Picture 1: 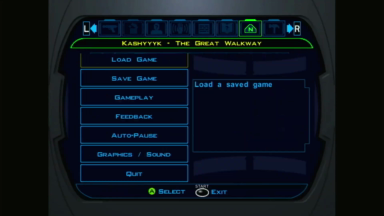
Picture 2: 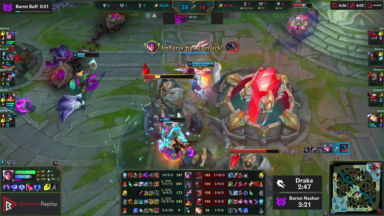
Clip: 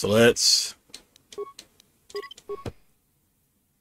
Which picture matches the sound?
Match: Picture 1